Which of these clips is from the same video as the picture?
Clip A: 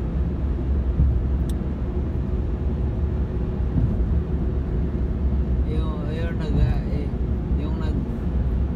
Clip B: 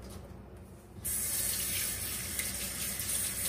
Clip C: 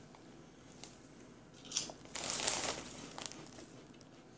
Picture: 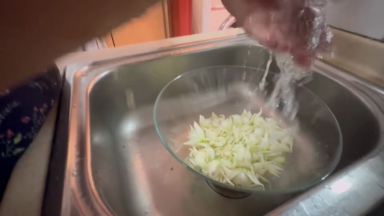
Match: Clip B